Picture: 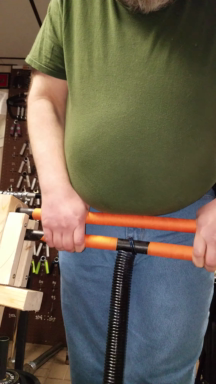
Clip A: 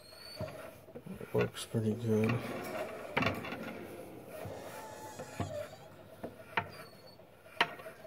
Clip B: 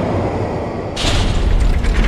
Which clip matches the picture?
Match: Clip A